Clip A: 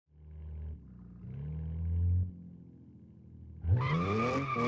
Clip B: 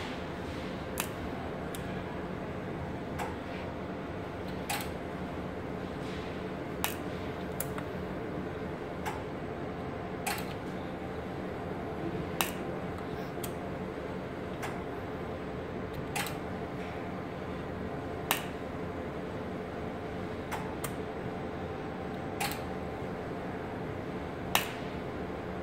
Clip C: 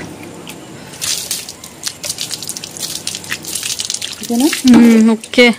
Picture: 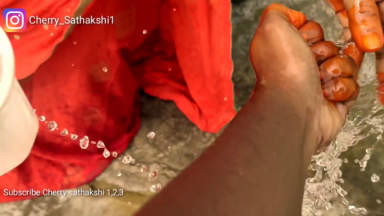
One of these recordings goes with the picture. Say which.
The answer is C